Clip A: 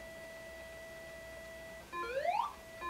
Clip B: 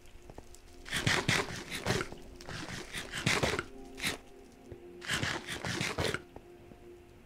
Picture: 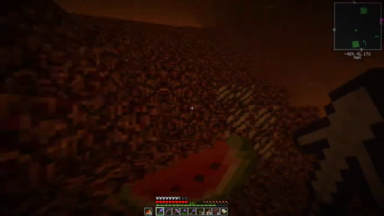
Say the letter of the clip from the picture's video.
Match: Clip B